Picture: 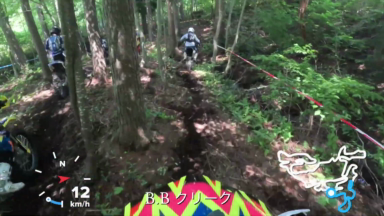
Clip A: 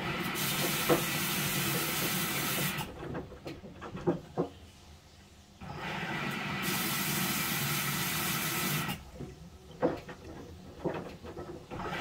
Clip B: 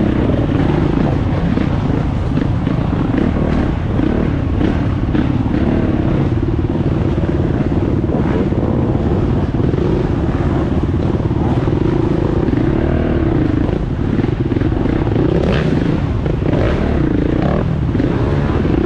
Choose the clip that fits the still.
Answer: B